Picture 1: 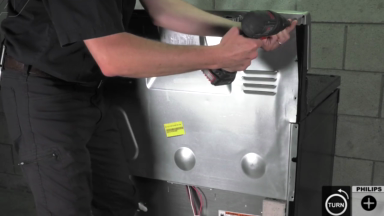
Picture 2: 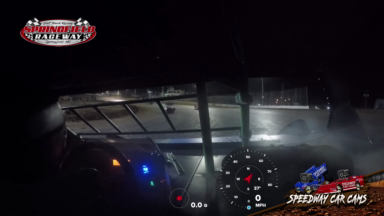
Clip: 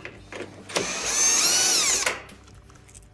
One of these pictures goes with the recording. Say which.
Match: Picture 1